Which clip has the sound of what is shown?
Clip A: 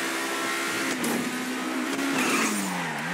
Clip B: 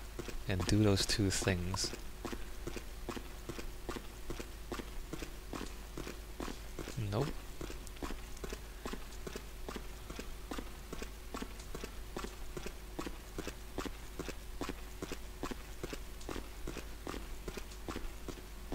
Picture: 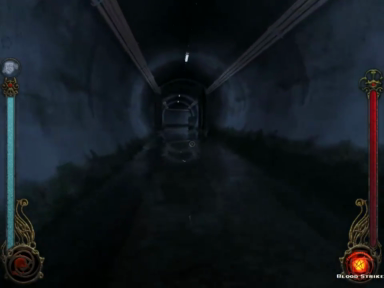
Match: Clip B